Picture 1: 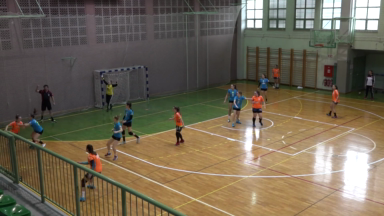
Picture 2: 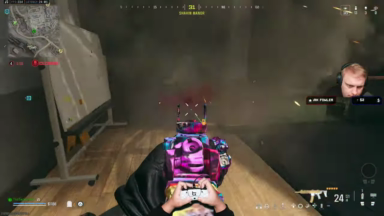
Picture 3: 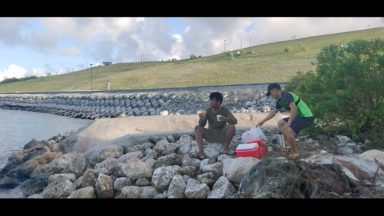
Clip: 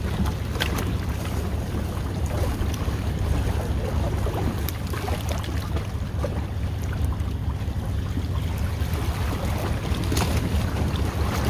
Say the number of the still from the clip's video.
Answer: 3